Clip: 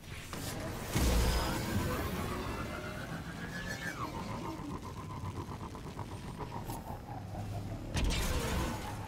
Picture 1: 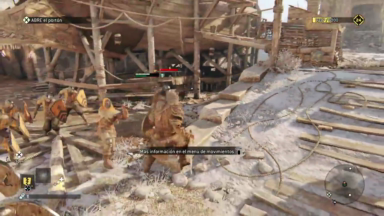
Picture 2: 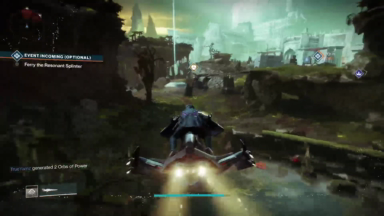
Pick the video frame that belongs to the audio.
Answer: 2